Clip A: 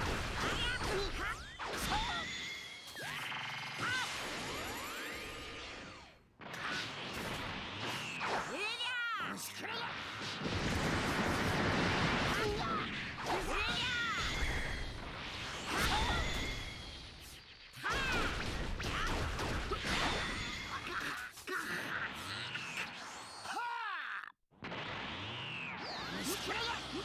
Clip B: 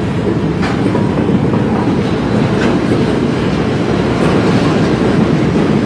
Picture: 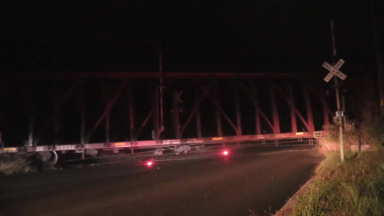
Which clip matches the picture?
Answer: B